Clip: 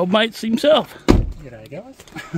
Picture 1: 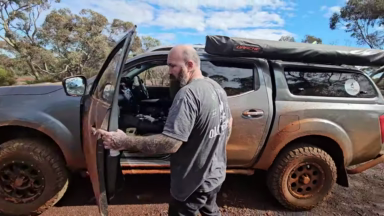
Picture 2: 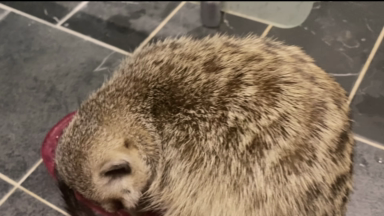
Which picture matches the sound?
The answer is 1